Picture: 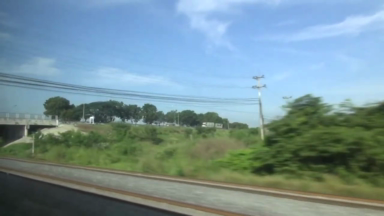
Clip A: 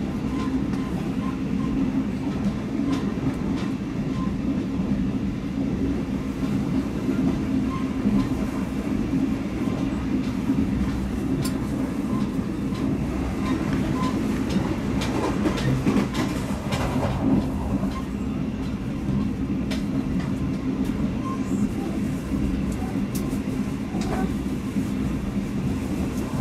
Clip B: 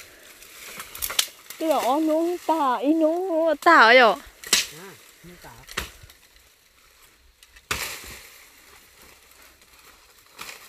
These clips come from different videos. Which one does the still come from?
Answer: A